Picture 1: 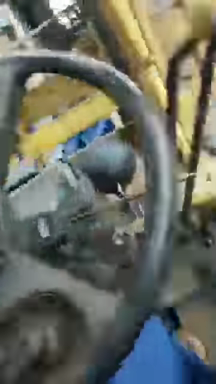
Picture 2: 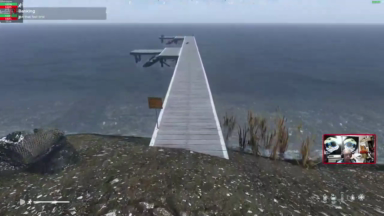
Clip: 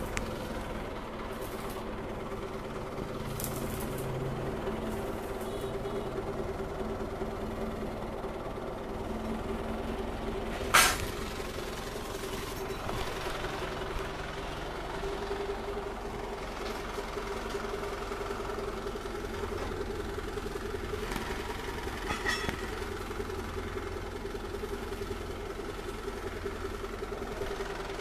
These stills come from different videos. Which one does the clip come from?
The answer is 1